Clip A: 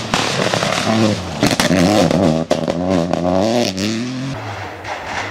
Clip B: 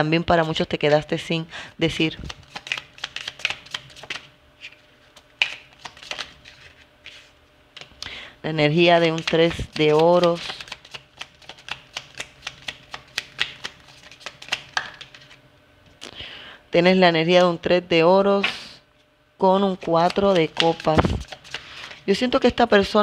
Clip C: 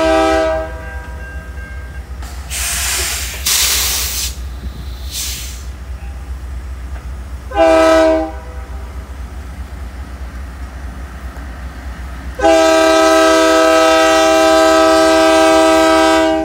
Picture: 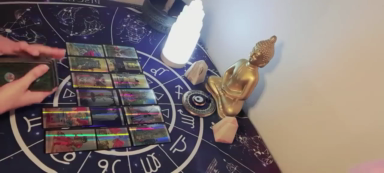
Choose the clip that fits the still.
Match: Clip B